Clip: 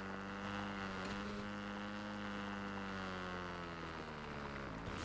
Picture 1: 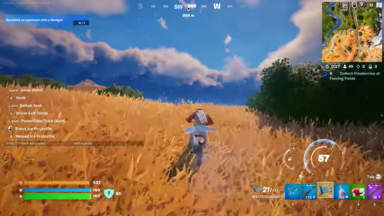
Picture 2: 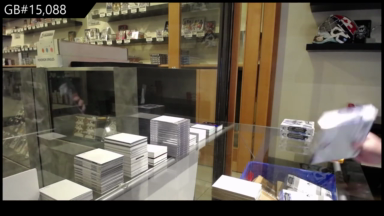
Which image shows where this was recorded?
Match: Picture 1